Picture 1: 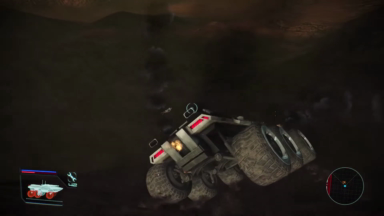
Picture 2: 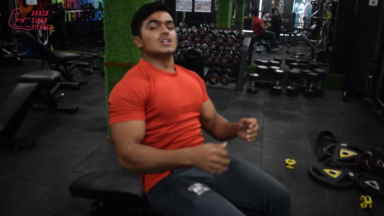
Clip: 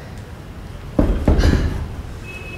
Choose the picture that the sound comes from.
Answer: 2